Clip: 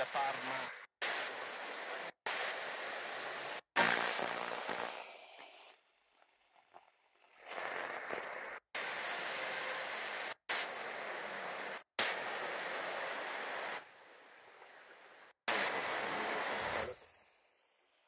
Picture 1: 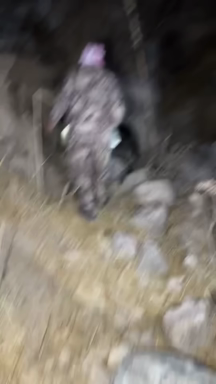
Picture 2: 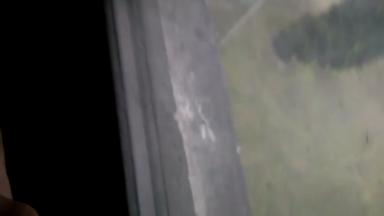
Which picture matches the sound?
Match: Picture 2